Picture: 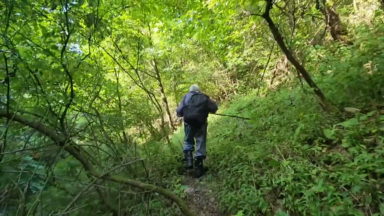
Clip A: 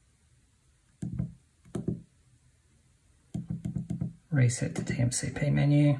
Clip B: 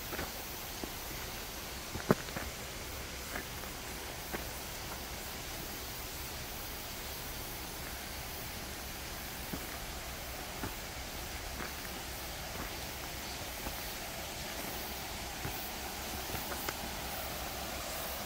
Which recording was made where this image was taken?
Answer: B